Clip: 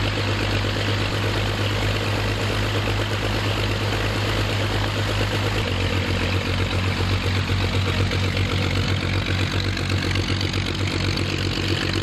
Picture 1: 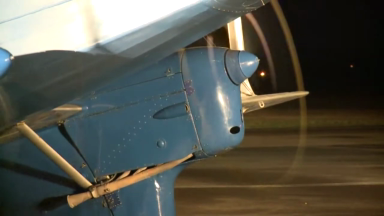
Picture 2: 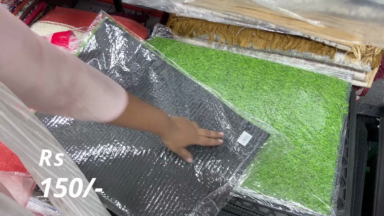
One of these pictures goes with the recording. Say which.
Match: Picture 1